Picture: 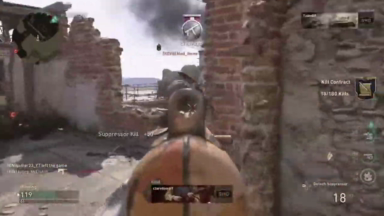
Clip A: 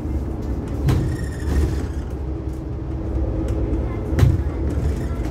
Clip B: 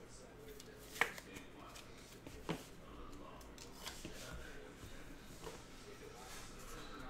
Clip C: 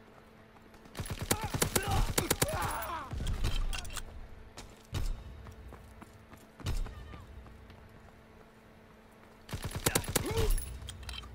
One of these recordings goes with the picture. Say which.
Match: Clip C